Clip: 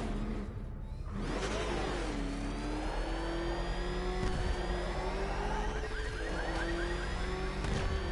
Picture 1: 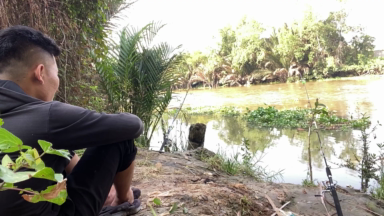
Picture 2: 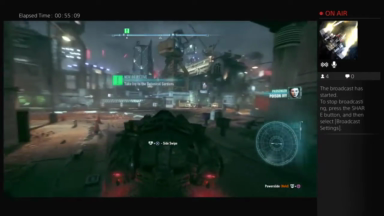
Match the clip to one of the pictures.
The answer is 2